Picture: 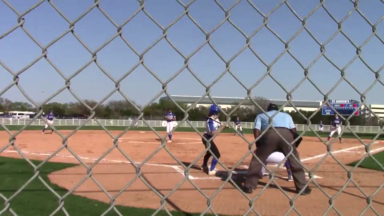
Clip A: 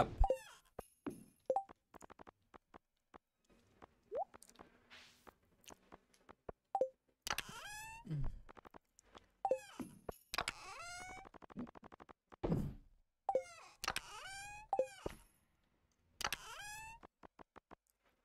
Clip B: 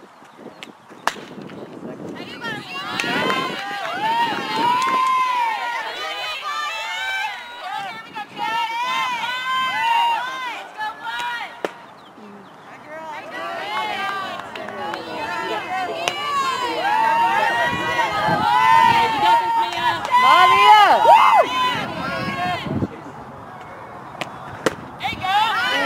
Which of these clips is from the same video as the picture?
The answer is B